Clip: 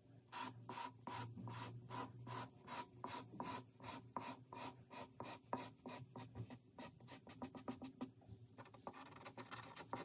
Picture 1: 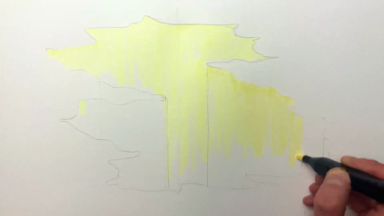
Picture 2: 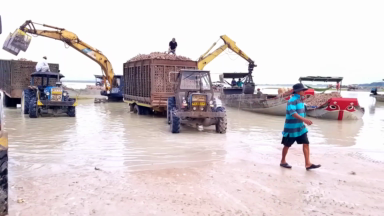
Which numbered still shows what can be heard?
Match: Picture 1